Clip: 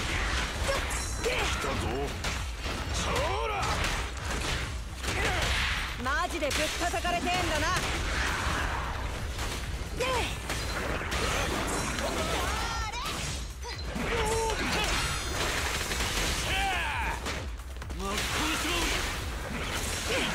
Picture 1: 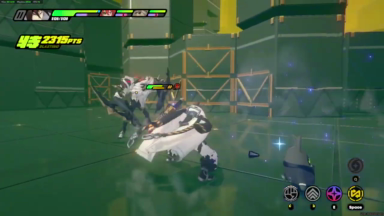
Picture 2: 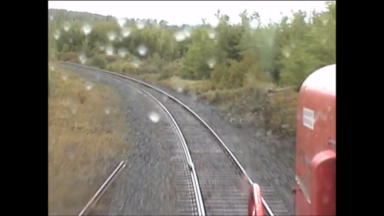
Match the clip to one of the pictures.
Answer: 1